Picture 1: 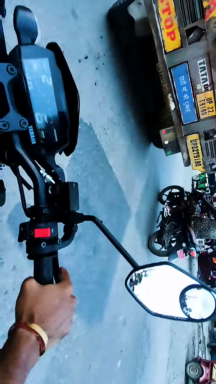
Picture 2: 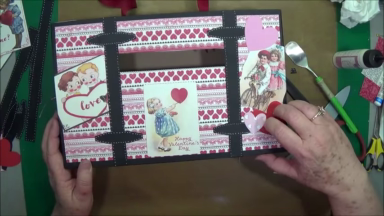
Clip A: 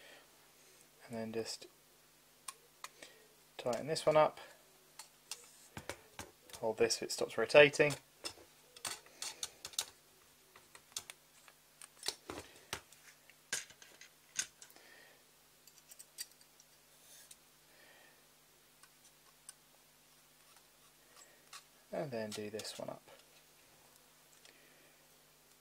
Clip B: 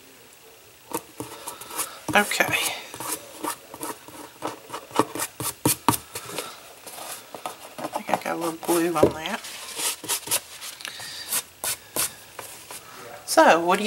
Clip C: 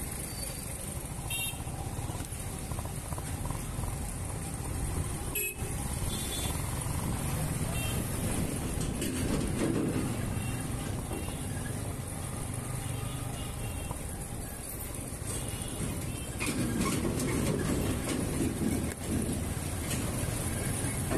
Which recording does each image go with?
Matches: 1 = C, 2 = B